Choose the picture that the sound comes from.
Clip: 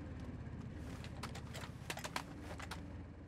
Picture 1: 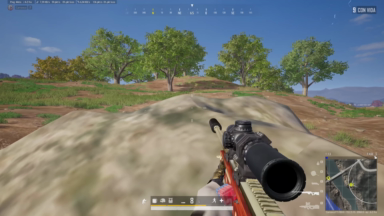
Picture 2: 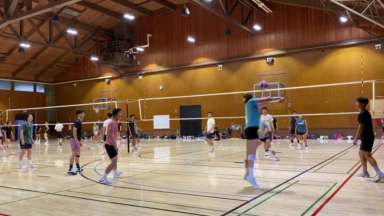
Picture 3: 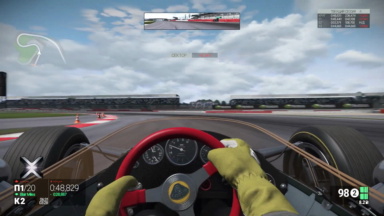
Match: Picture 1